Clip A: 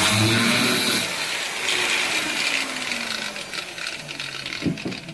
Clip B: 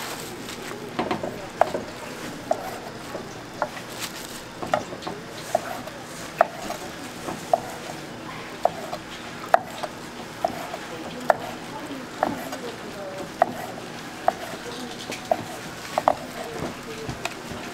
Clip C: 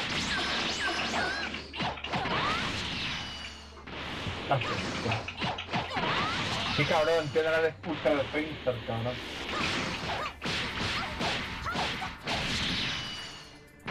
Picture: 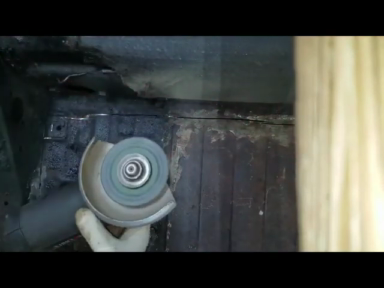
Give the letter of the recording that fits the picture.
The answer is A